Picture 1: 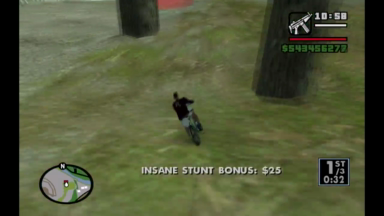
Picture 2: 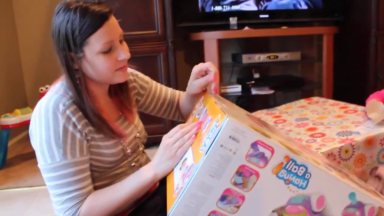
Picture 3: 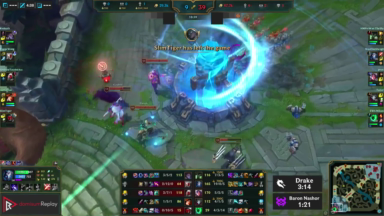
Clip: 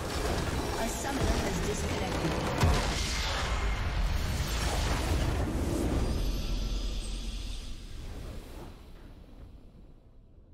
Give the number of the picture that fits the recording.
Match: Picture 3